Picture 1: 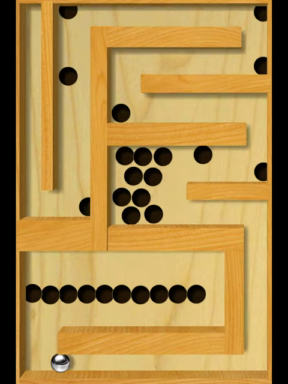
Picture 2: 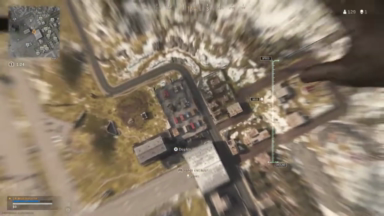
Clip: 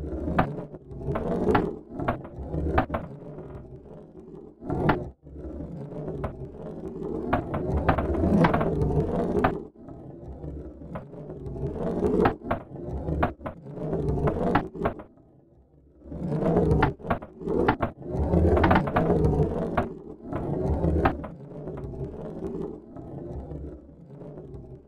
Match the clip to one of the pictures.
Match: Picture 1